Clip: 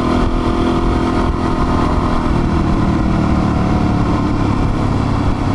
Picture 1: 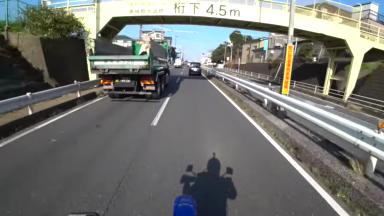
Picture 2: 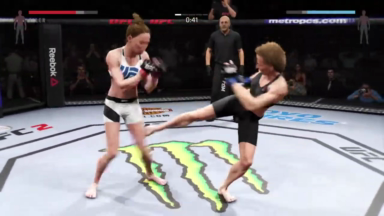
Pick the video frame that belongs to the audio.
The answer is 1